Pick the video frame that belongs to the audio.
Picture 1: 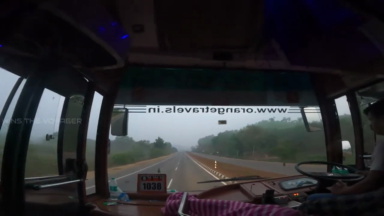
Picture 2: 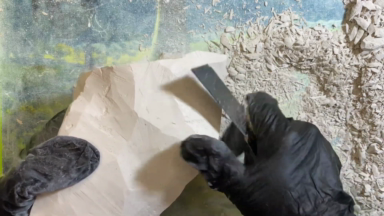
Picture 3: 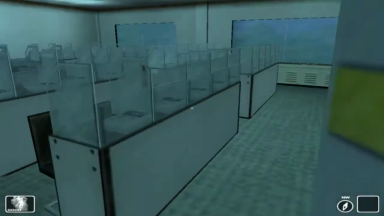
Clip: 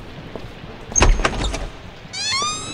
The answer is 3